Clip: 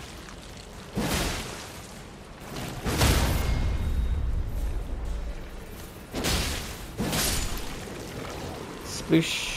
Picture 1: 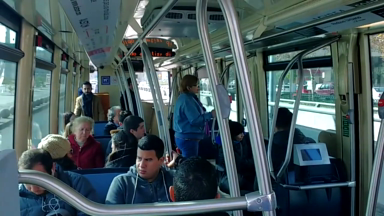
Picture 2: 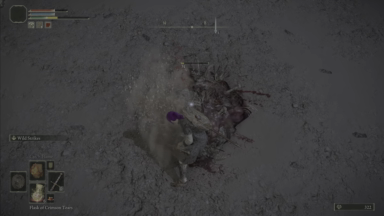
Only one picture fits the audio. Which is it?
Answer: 2